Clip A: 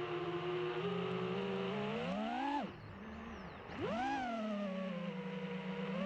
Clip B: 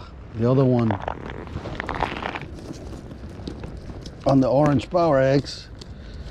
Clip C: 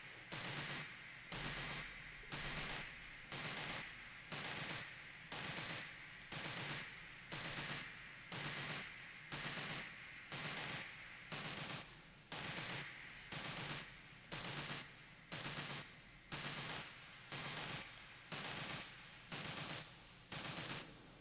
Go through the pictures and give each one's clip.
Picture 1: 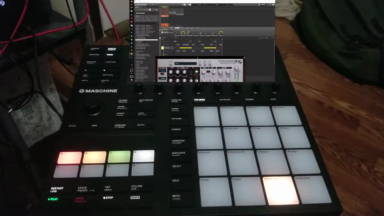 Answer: C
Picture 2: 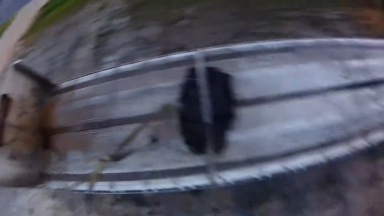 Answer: A